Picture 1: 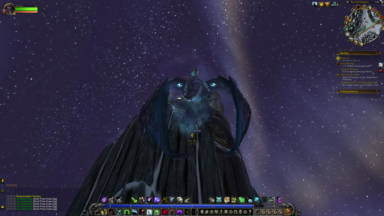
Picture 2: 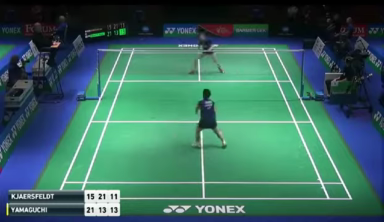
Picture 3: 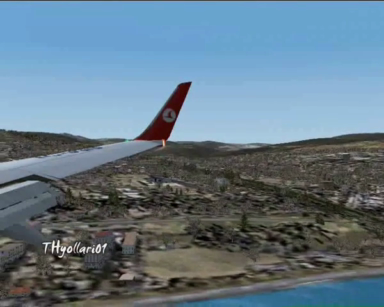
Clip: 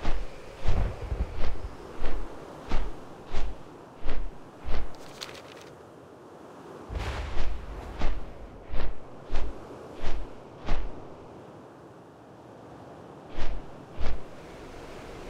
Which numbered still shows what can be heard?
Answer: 1